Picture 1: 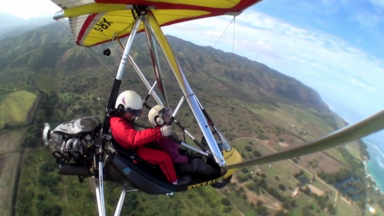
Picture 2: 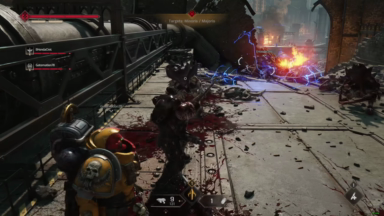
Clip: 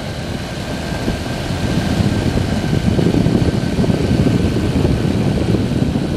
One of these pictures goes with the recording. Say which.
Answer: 1